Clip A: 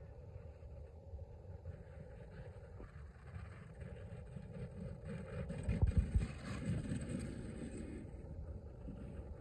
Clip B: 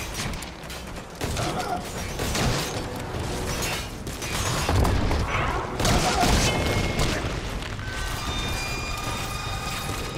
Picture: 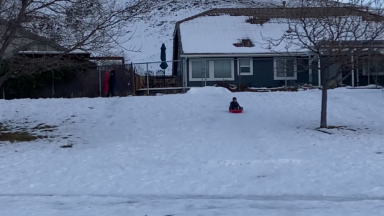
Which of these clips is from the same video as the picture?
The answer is A